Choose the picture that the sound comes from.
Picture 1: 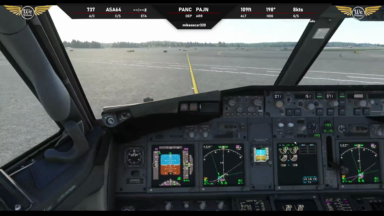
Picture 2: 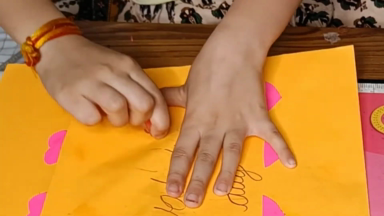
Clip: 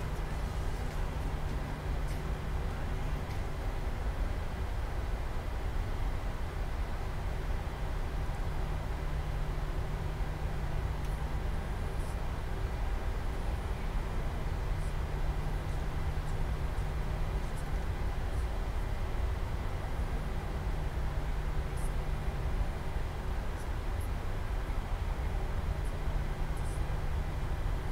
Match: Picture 1